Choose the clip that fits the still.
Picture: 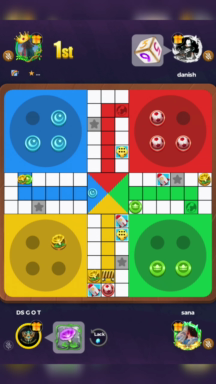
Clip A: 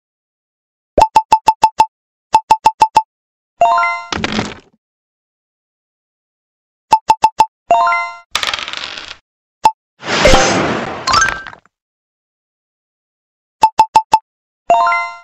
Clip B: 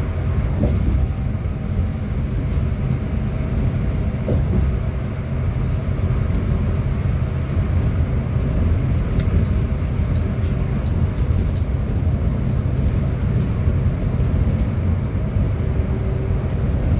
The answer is A